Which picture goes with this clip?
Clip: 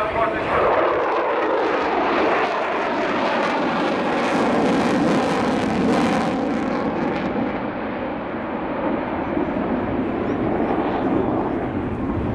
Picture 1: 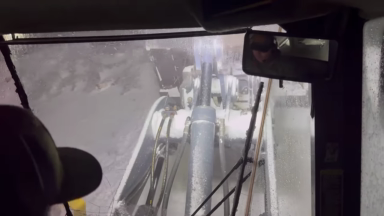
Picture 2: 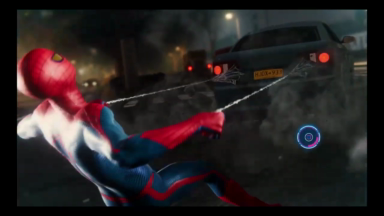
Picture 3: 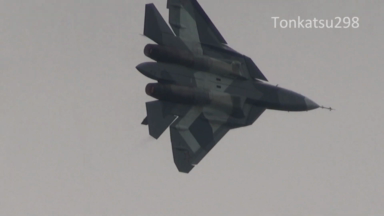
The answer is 3